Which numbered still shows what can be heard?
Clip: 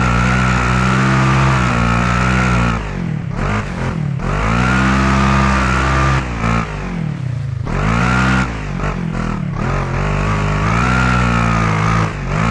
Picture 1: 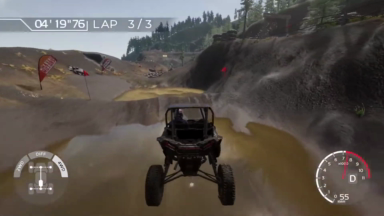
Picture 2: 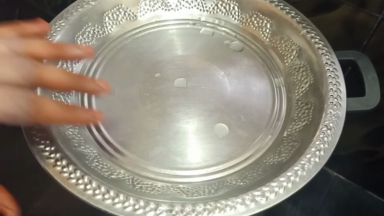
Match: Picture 1